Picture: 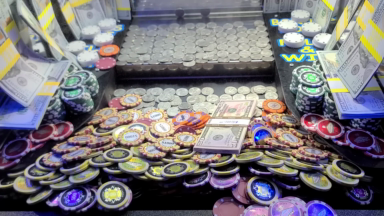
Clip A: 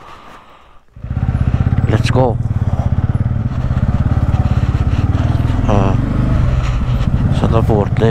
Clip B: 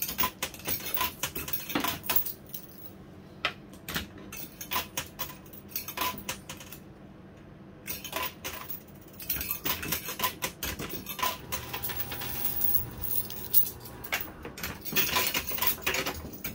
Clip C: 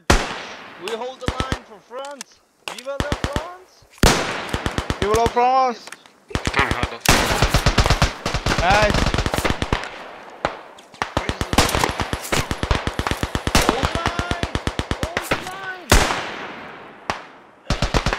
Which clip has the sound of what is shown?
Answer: B